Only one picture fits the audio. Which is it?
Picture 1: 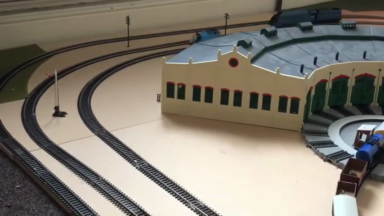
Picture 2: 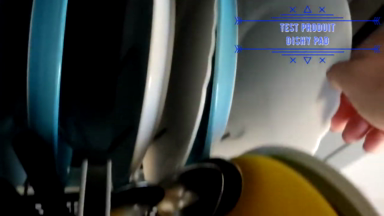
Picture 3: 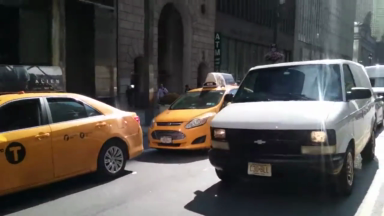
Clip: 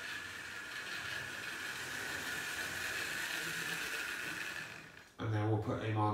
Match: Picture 1